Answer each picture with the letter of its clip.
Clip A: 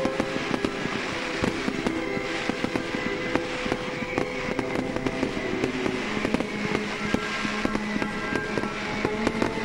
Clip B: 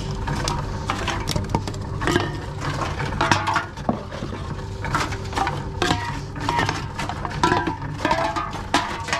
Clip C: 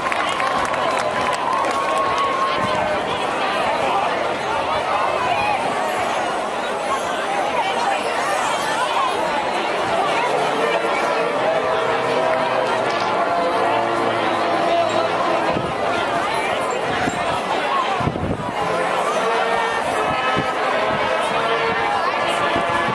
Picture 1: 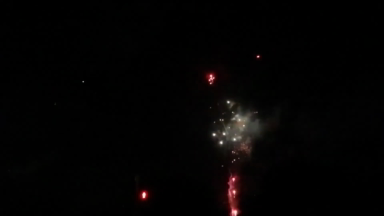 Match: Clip A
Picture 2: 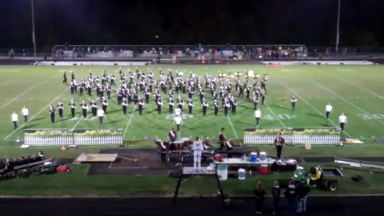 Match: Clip C